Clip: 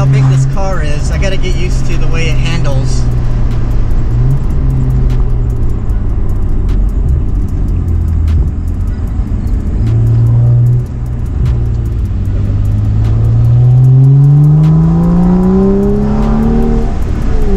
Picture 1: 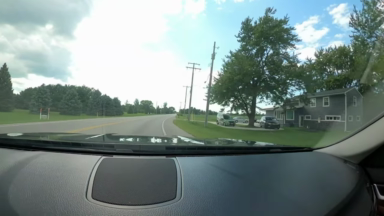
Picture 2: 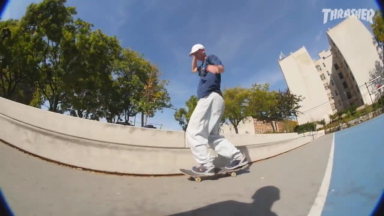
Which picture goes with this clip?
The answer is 1